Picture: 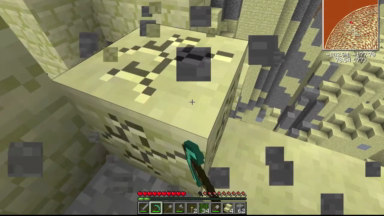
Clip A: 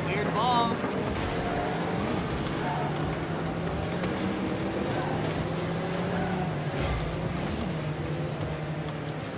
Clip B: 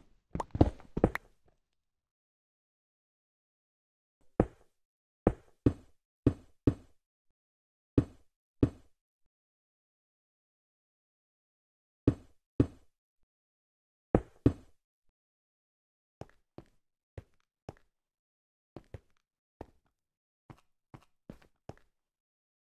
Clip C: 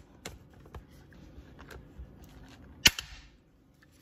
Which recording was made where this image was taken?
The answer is B